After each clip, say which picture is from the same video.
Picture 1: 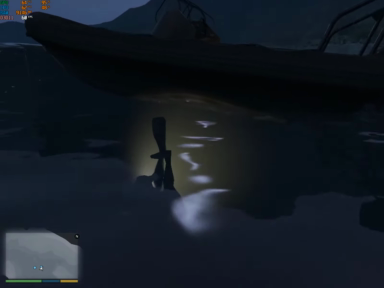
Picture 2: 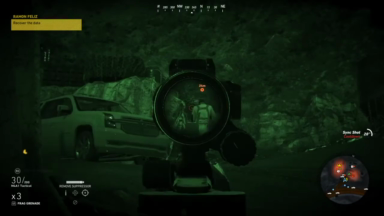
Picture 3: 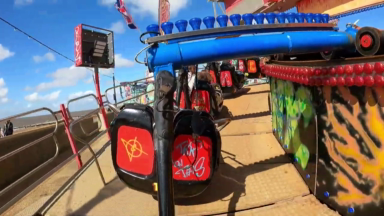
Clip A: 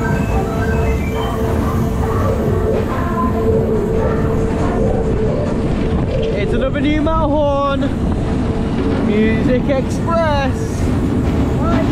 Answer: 3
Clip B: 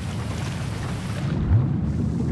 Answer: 1